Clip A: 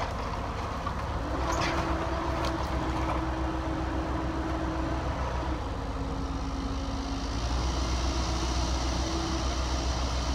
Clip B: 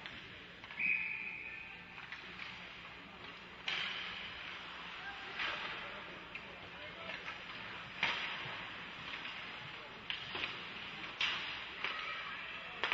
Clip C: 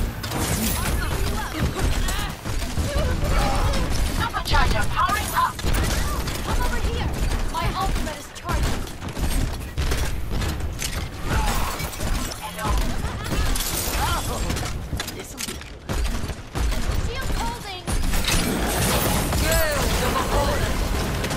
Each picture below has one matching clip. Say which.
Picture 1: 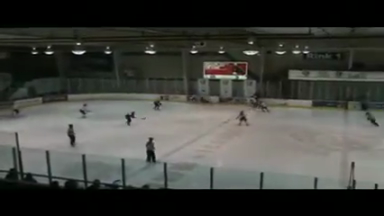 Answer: B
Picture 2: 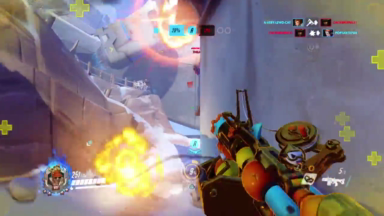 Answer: C